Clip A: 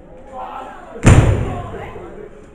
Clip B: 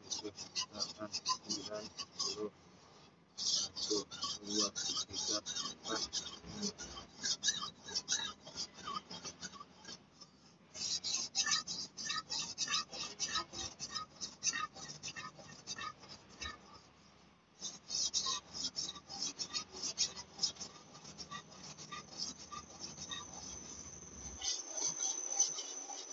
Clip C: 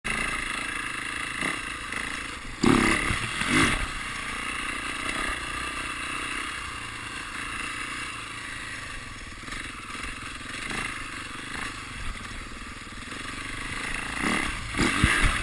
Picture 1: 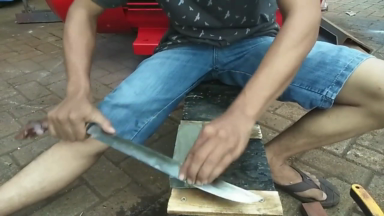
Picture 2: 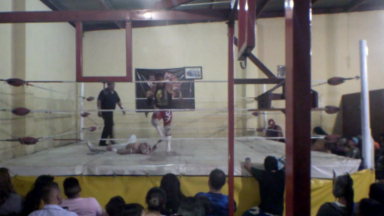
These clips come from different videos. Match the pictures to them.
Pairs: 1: B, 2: A